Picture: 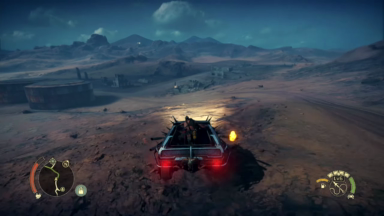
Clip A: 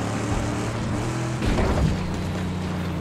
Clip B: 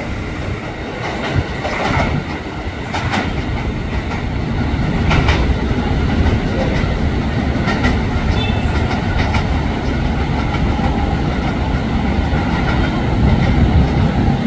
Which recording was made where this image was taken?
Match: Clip A